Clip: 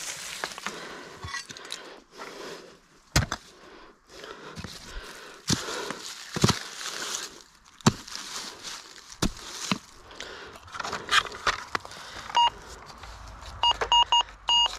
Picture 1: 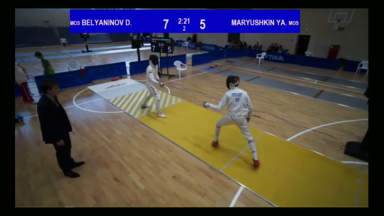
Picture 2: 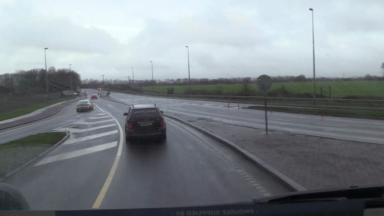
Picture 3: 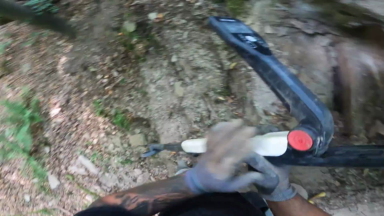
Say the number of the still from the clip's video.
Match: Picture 3